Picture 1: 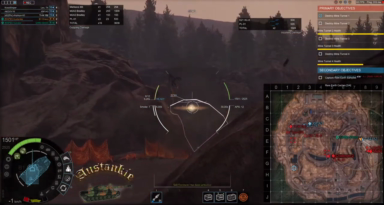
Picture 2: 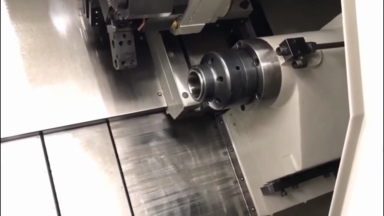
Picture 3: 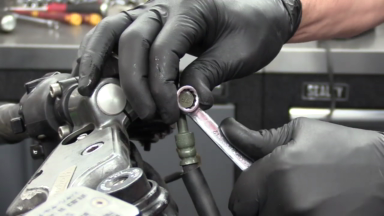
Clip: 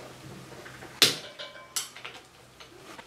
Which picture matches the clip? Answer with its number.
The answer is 3